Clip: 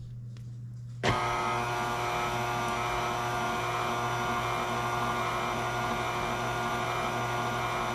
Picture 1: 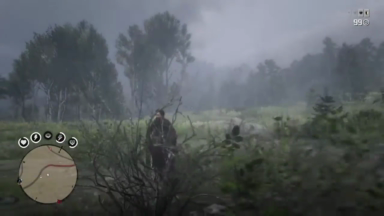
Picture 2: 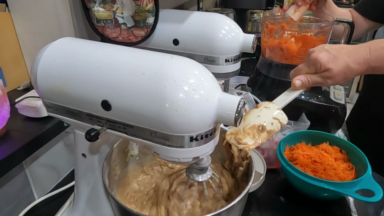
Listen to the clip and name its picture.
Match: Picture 2